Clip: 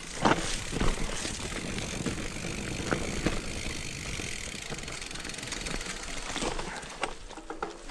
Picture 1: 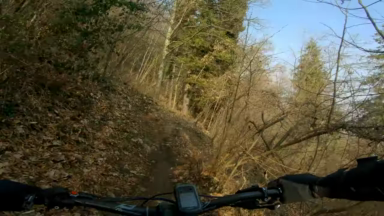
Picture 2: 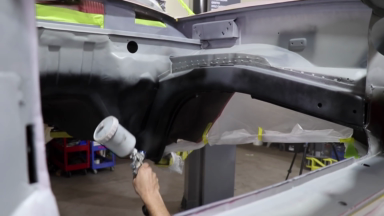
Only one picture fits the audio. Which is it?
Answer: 1